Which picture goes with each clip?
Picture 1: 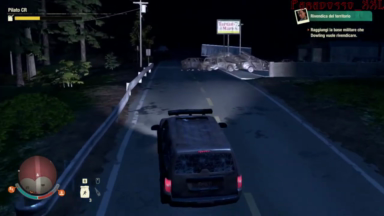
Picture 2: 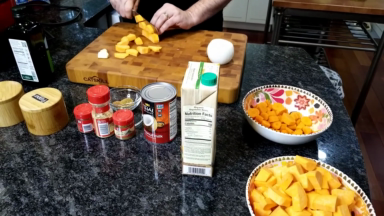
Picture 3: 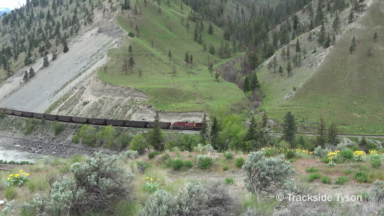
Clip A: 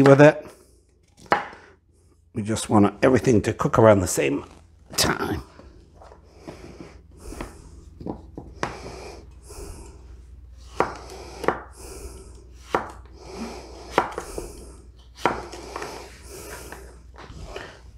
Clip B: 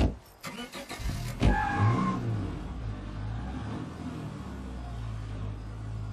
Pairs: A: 2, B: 1